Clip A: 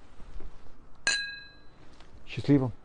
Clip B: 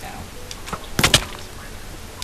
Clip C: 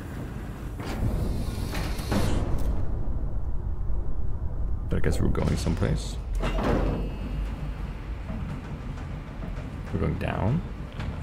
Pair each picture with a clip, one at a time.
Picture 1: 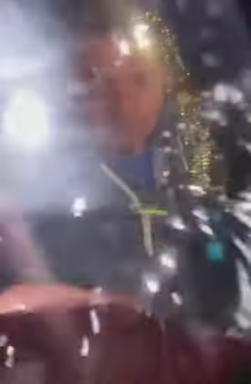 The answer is A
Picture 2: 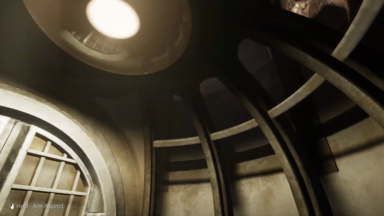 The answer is C